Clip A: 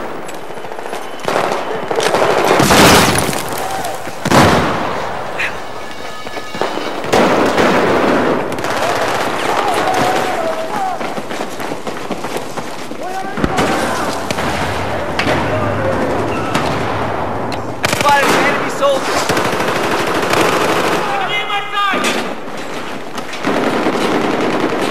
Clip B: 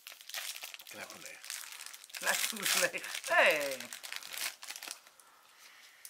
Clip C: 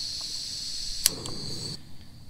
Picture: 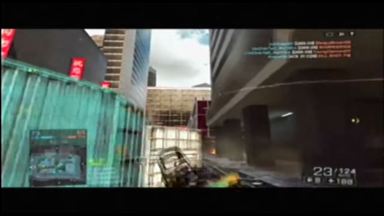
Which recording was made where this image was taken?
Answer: A